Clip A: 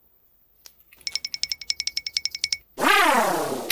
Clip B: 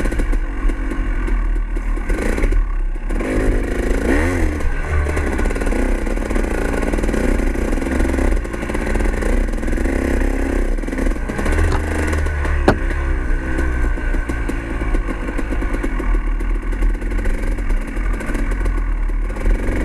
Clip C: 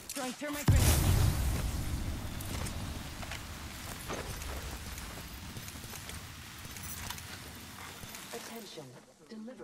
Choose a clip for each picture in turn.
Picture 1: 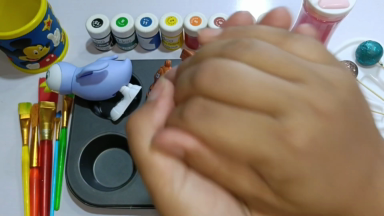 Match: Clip A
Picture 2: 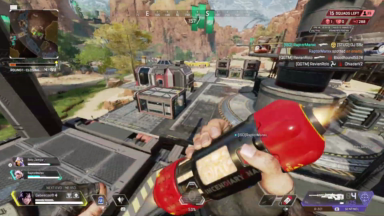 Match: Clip C